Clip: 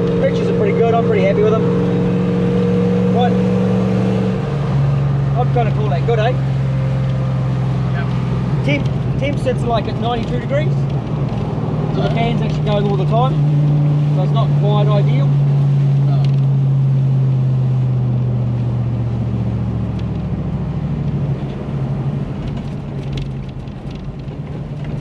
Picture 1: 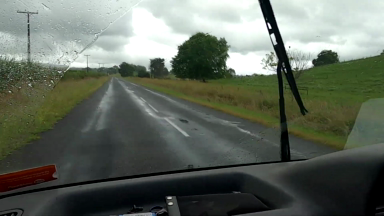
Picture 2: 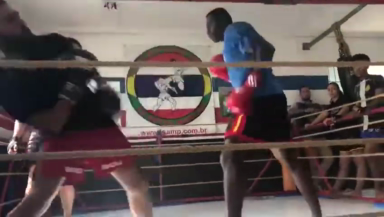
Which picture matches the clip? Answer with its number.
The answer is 1